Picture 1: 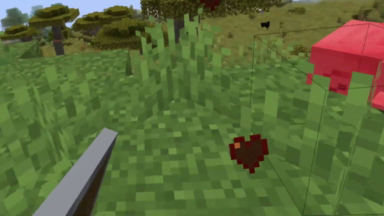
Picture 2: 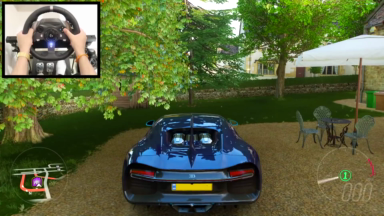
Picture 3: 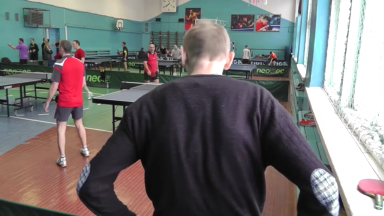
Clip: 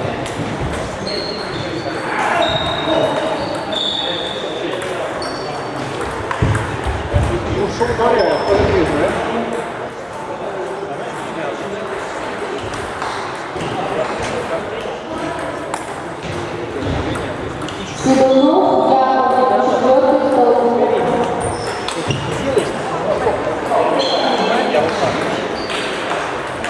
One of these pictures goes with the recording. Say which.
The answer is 3